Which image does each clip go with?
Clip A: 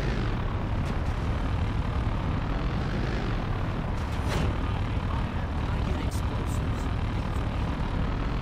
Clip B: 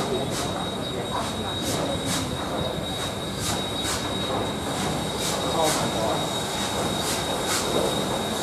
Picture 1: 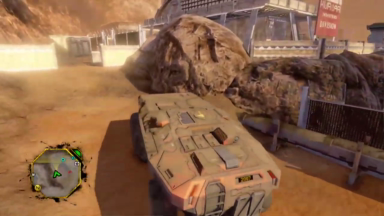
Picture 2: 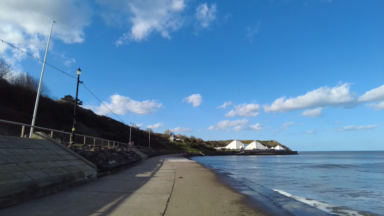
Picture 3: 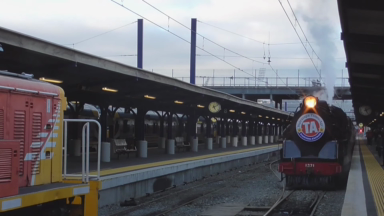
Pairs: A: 1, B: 3